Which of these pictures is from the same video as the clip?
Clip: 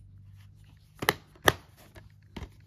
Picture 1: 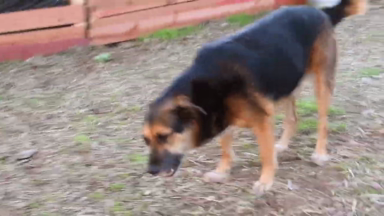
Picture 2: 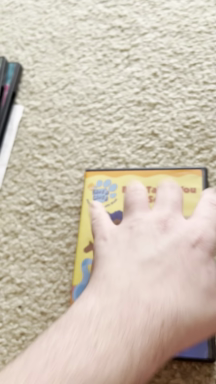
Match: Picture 2